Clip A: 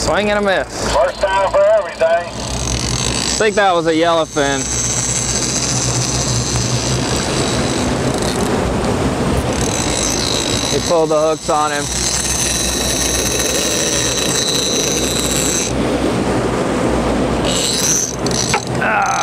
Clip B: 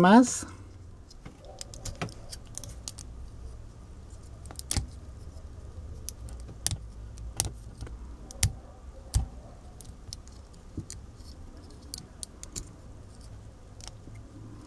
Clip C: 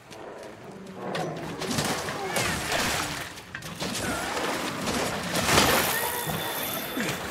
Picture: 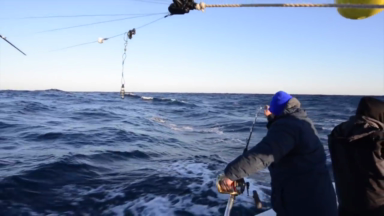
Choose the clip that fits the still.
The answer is A